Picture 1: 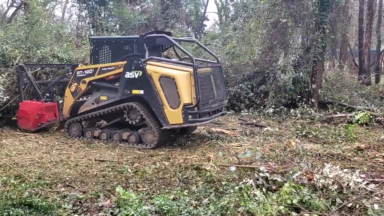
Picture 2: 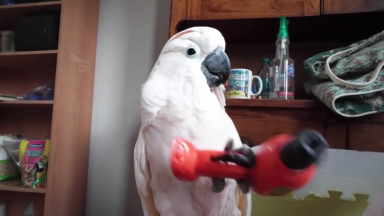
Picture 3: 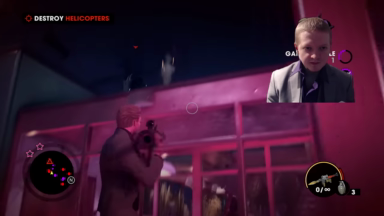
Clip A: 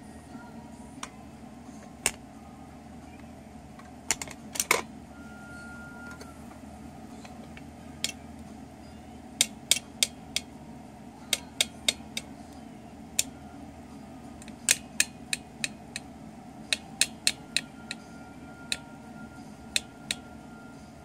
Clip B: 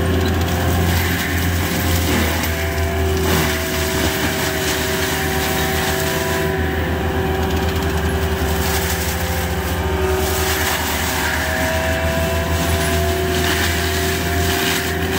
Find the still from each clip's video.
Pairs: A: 2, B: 1